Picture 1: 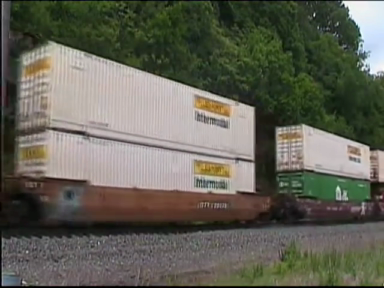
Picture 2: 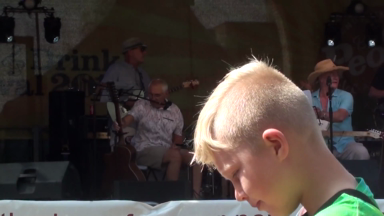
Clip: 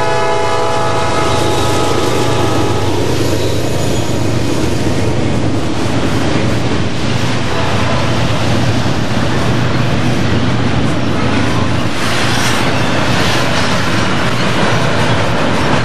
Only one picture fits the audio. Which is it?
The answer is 1